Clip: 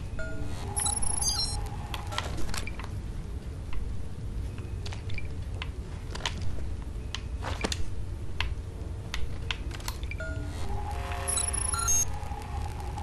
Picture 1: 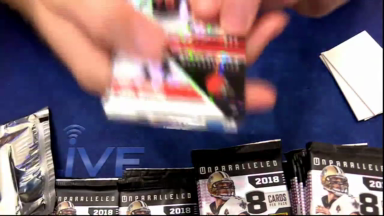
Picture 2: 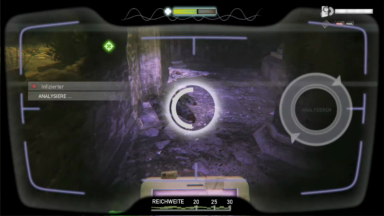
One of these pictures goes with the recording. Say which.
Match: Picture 2